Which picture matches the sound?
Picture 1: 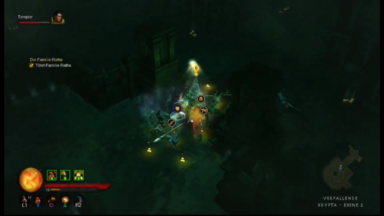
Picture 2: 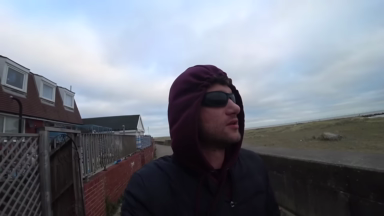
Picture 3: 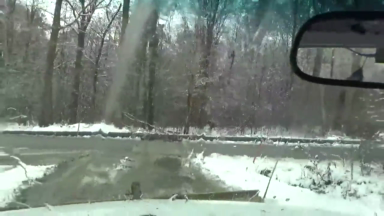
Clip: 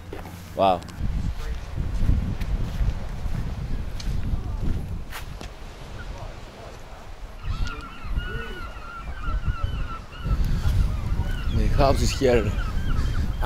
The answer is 2